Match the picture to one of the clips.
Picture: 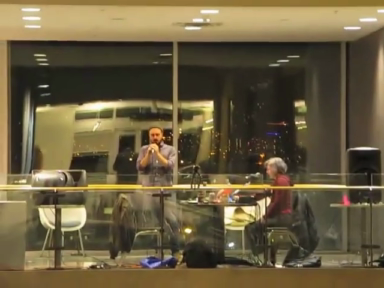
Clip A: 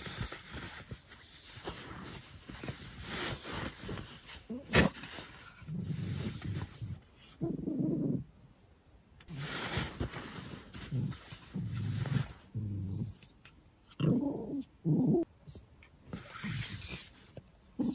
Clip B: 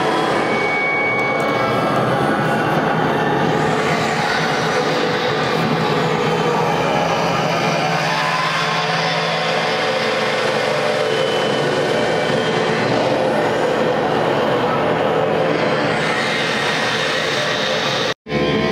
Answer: B